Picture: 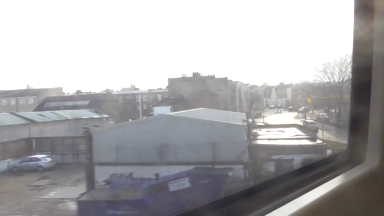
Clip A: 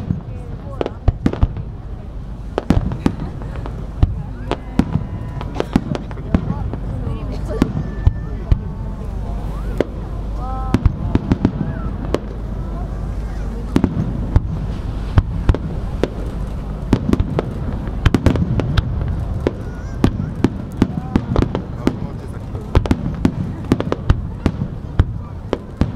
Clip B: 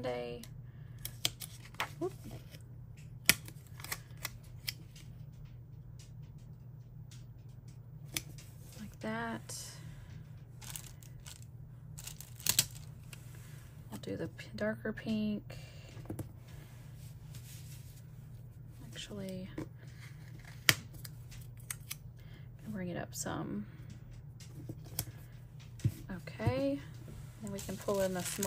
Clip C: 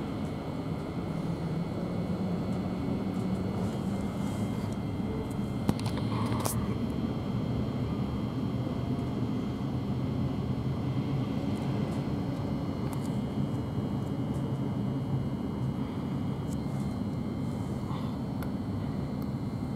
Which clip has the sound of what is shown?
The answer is C